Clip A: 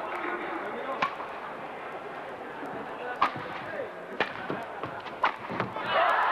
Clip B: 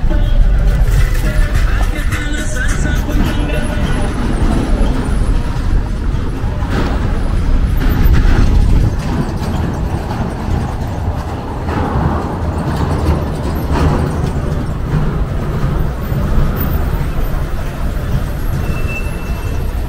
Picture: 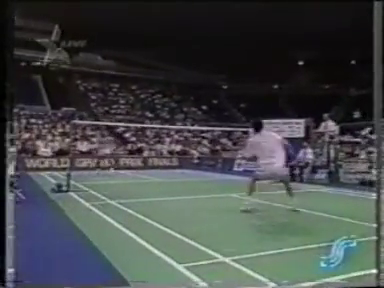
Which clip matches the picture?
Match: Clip A